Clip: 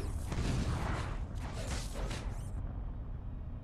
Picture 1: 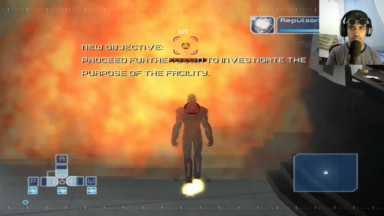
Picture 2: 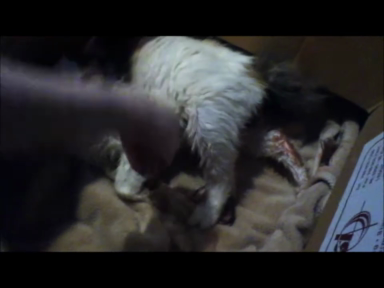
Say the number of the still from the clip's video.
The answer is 1